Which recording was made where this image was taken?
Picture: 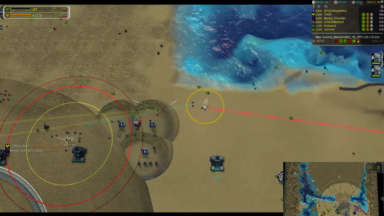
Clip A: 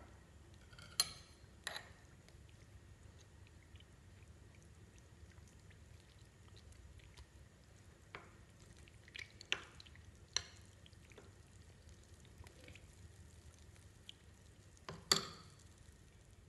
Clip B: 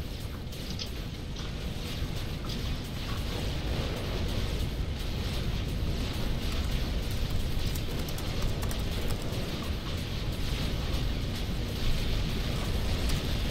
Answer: B